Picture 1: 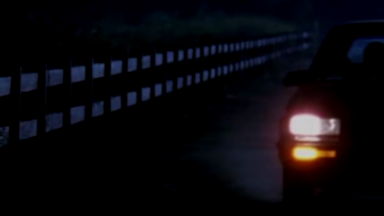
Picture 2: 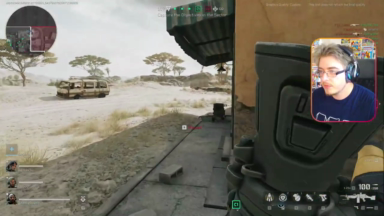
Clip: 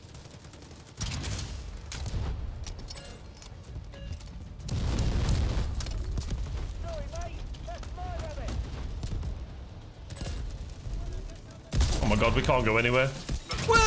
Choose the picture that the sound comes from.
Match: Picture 2